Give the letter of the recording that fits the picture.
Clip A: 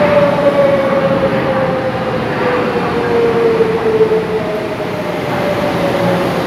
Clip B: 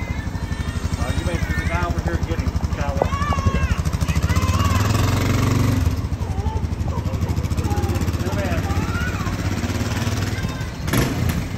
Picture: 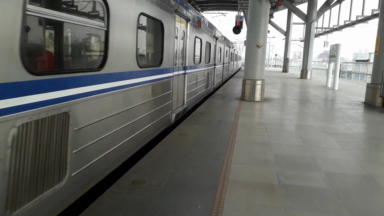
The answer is A